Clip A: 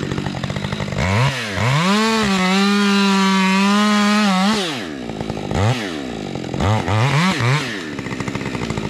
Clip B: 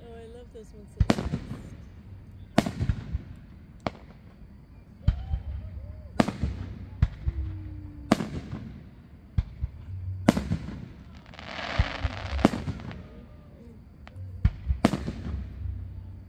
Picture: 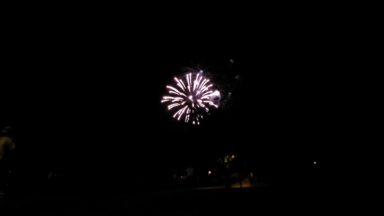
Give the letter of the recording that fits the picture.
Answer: B